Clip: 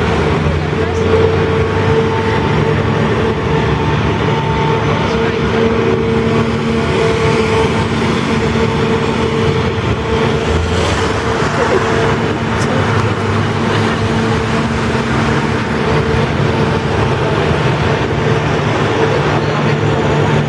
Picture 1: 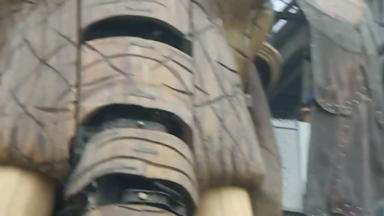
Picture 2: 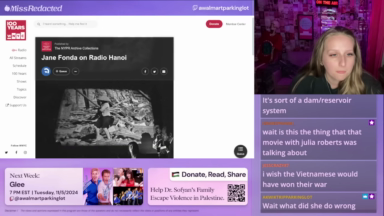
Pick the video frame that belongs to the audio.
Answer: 1